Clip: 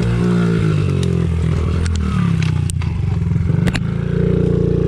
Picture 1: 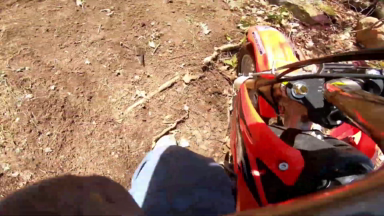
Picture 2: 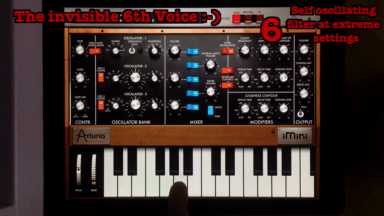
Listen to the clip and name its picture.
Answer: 1